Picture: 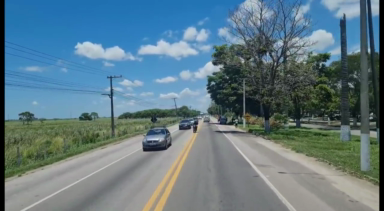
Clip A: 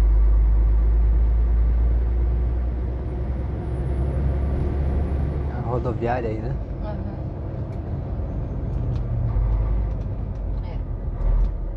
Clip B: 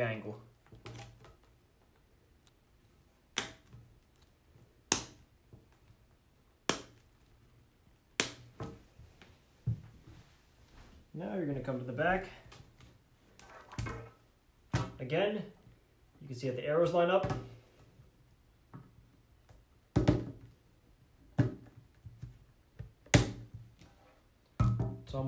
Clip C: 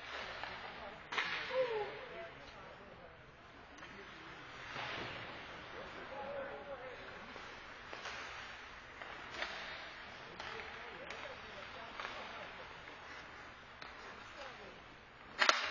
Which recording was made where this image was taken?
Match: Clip A